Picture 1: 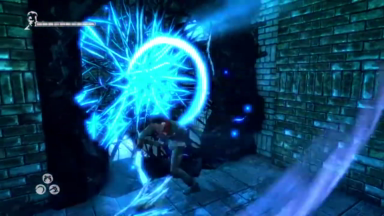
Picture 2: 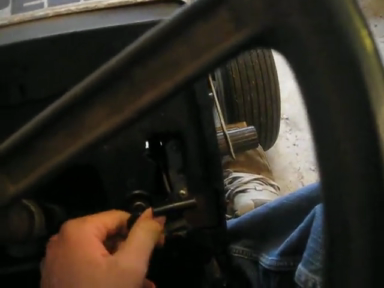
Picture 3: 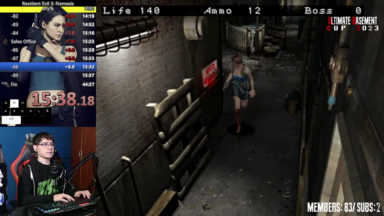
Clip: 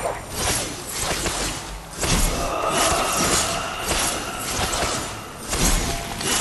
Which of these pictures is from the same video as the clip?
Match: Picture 1